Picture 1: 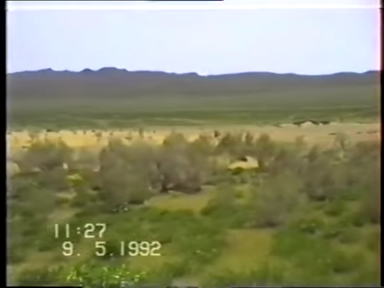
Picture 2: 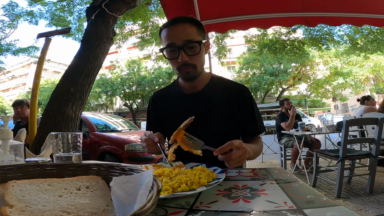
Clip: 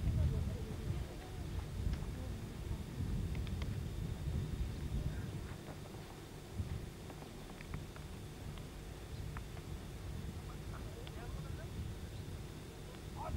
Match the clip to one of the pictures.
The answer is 1